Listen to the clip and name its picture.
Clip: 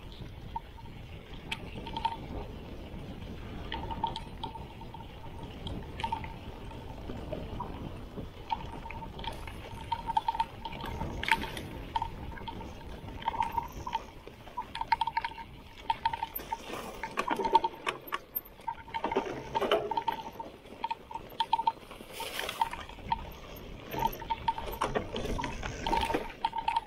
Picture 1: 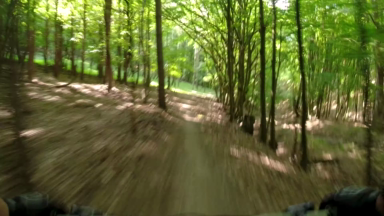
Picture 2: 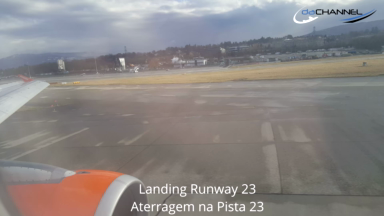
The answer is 1